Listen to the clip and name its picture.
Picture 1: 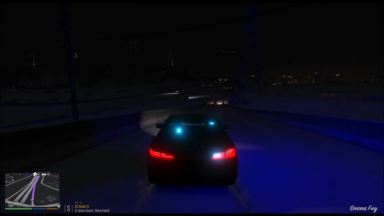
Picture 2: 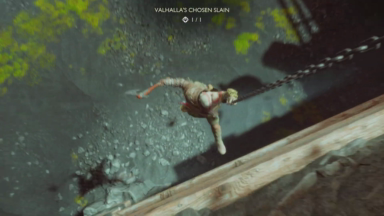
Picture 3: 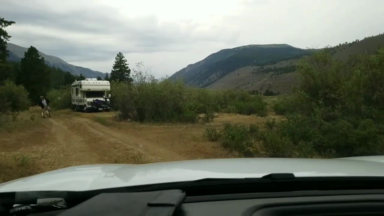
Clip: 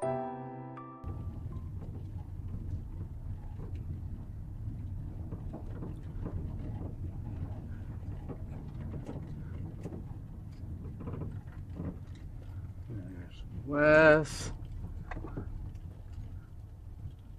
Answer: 3